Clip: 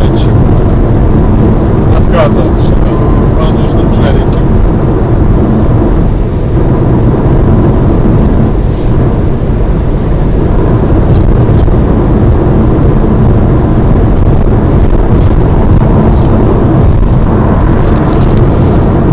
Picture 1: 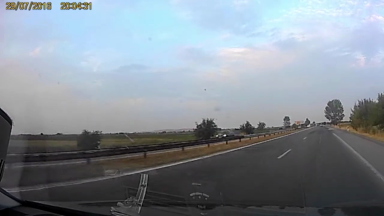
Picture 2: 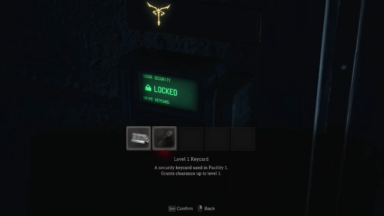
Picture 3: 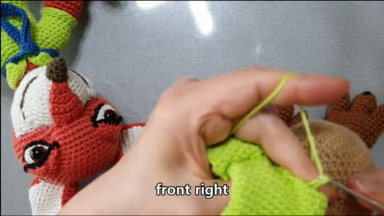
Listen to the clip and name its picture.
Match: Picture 1